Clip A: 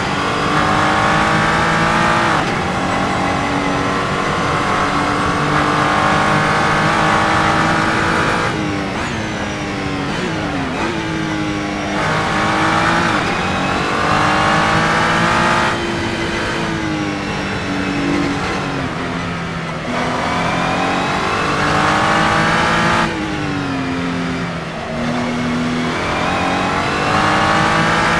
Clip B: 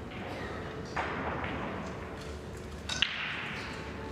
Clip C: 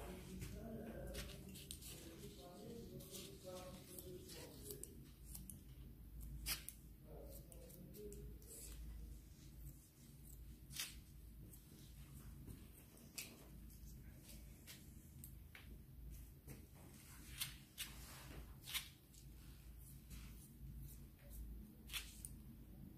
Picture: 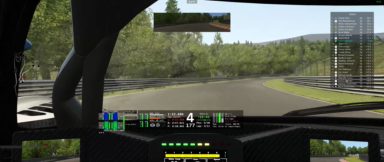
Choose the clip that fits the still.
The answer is A